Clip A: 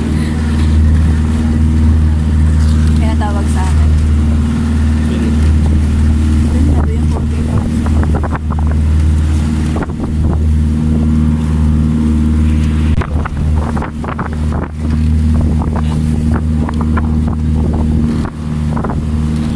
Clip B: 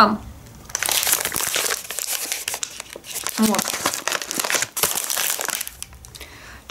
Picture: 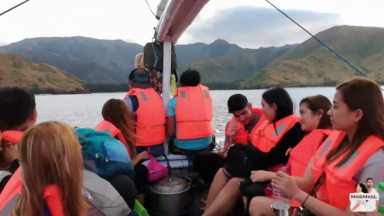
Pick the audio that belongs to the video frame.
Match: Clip A